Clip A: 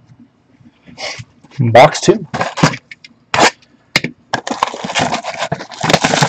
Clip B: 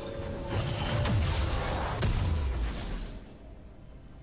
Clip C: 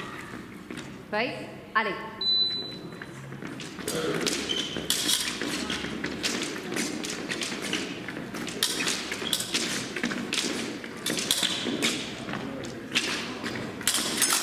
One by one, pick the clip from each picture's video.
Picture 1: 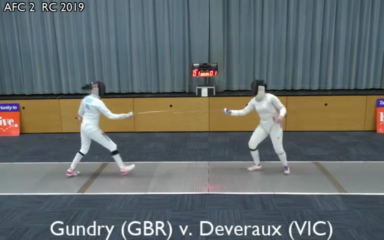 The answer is C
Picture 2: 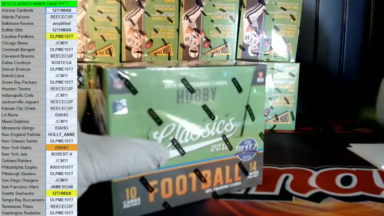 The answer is A